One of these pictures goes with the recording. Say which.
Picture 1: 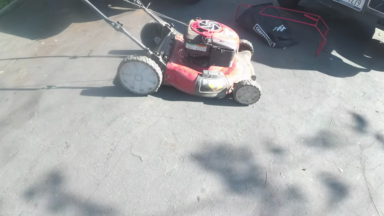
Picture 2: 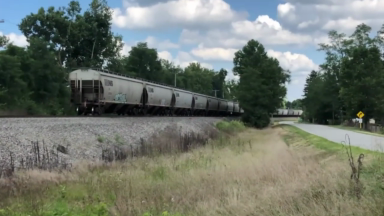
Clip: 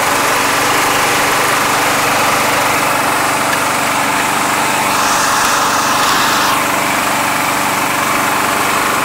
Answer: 1